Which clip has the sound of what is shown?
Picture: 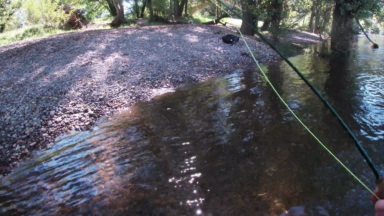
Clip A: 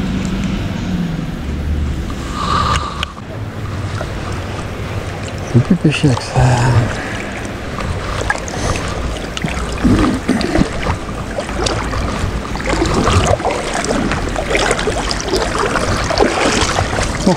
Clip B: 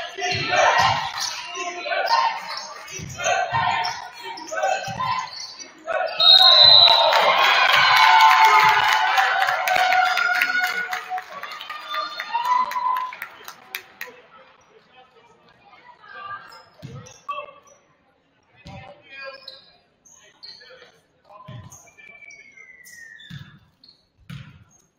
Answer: A